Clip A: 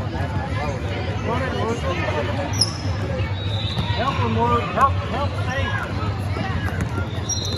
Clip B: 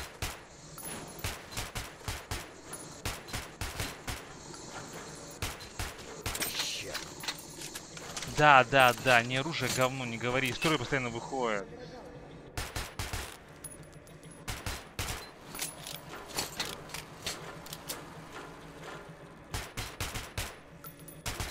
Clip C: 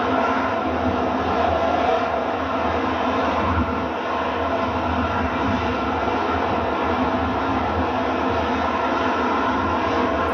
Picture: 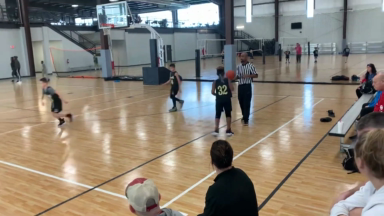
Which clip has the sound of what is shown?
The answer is A